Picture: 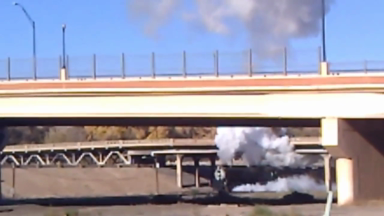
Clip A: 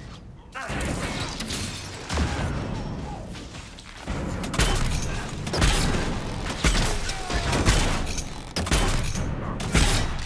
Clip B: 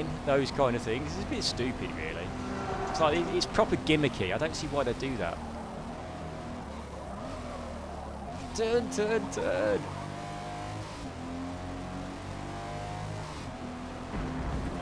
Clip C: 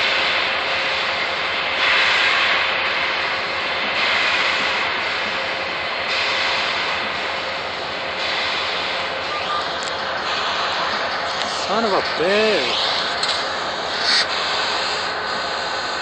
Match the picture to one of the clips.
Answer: C